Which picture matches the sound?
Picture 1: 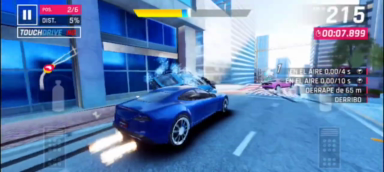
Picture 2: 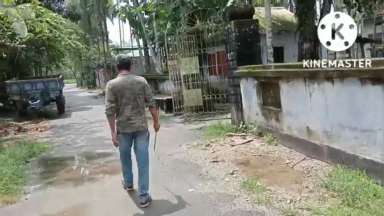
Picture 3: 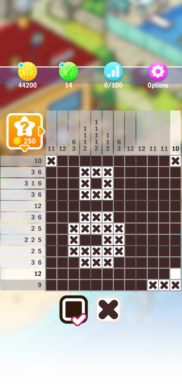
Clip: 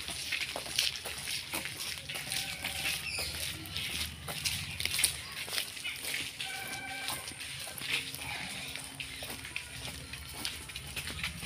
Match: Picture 2